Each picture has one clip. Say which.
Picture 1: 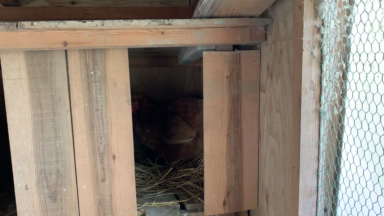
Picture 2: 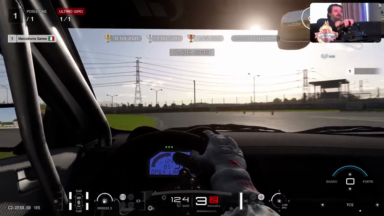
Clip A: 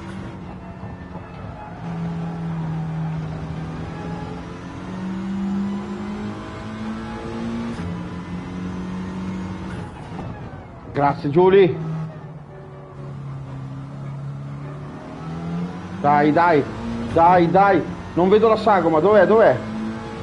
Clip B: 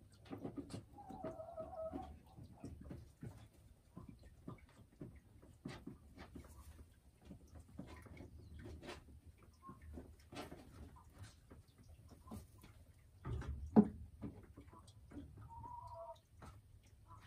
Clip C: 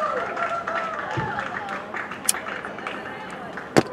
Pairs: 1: B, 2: A